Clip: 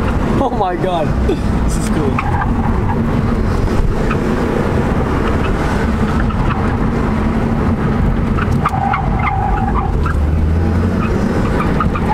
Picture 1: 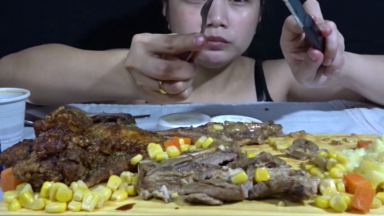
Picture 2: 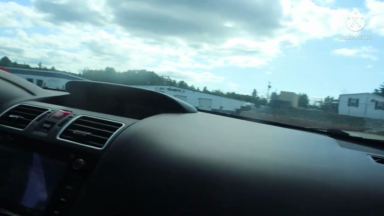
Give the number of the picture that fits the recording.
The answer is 2